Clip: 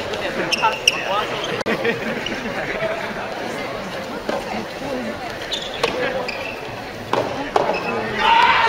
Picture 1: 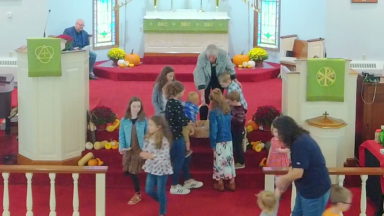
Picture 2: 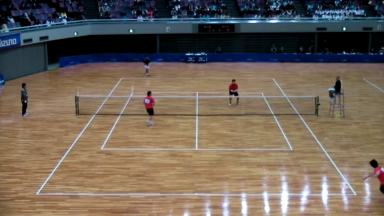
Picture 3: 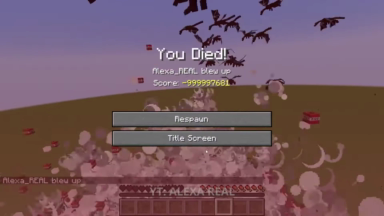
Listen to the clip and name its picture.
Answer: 2